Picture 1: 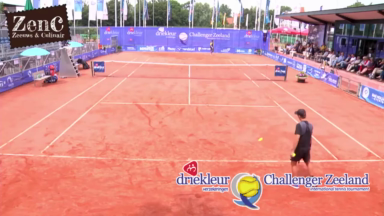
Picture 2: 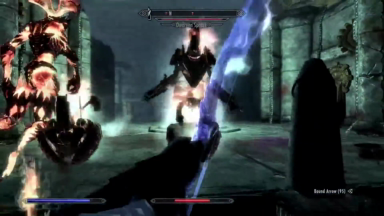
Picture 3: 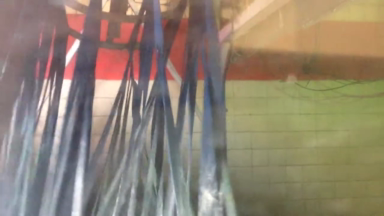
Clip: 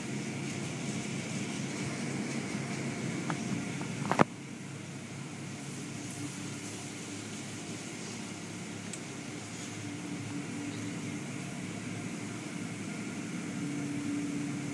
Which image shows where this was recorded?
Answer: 3